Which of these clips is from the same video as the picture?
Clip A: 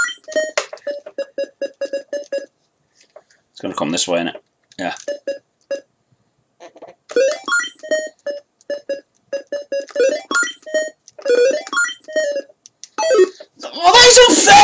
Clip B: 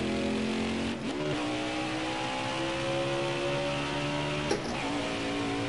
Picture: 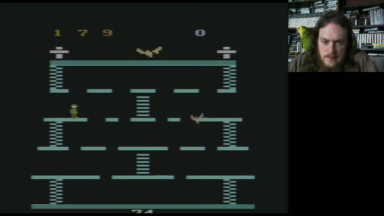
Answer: A